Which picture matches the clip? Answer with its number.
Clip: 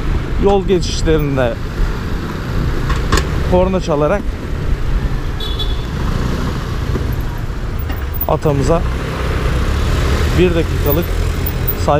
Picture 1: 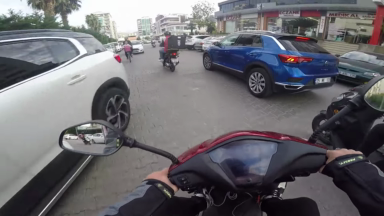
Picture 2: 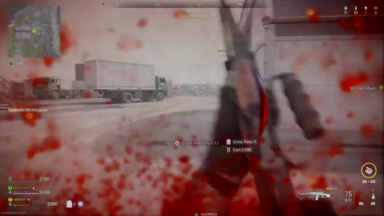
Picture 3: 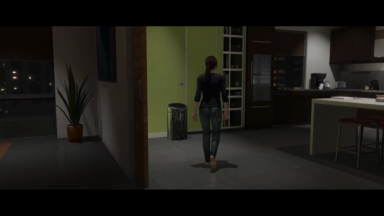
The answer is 1